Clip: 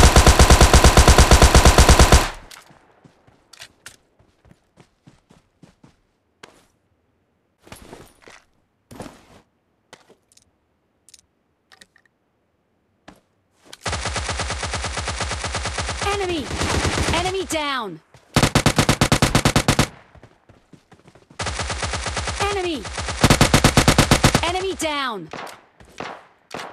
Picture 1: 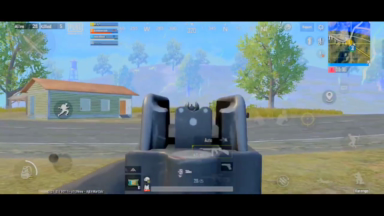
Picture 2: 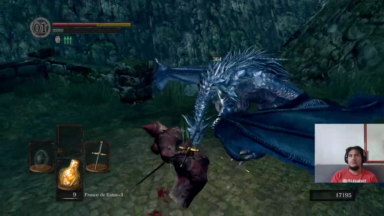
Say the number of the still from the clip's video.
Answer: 1